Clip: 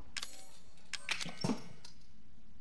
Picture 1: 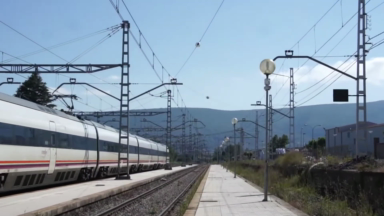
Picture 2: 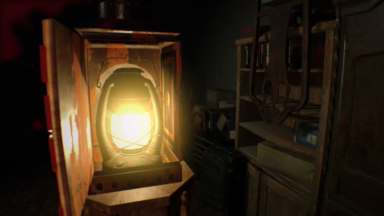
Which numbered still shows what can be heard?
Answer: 2